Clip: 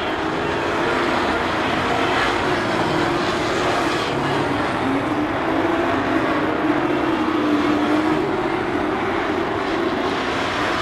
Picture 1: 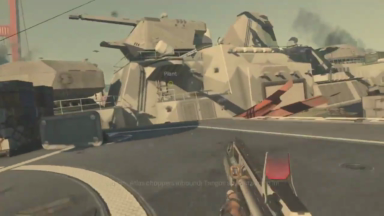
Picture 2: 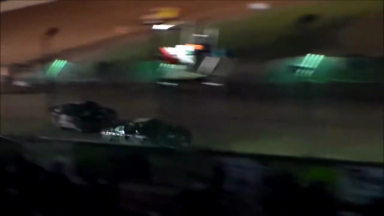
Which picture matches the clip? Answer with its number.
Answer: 2